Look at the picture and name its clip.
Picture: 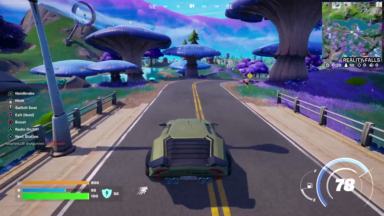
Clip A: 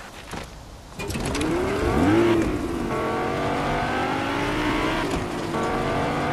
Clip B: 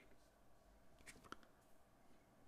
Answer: A